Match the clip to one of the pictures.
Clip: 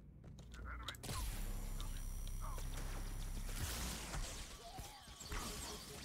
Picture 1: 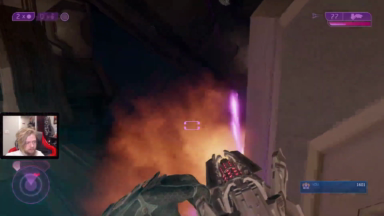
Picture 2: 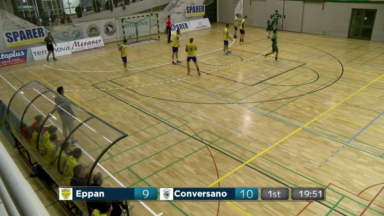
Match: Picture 1